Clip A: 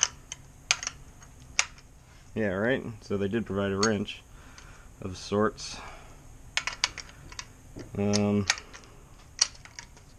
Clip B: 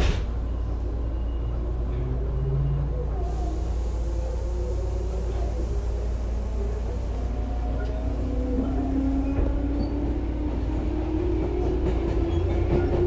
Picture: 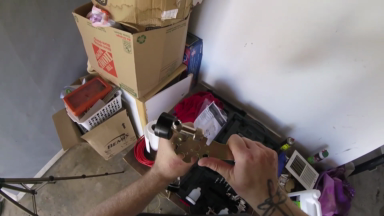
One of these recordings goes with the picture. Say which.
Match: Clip A